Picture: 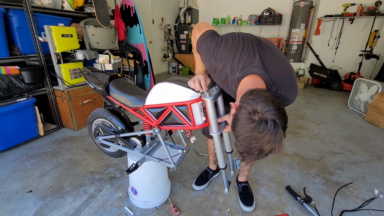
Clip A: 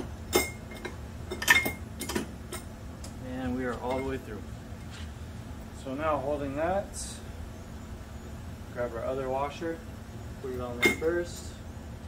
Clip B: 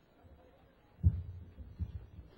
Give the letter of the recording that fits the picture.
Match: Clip A